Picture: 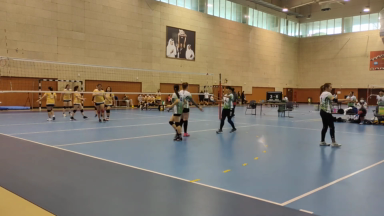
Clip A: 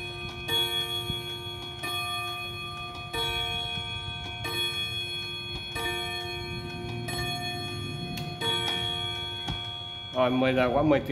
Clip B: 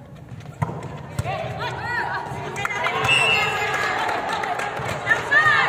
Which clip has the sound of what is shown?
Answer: B